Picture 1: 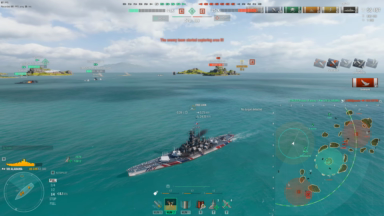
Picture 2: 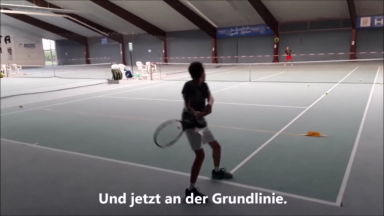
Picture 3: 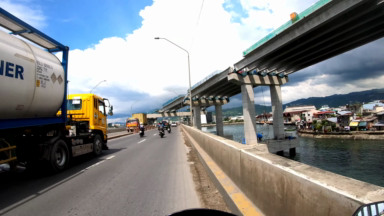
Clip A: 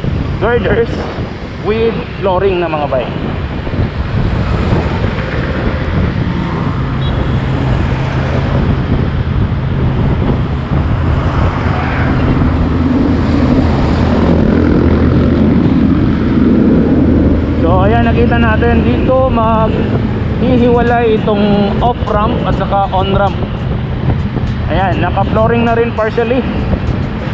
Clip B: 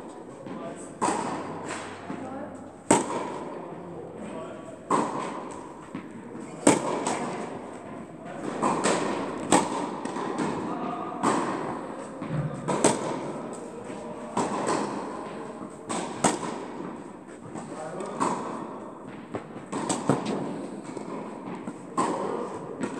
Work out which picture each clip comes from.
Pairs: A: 3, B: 2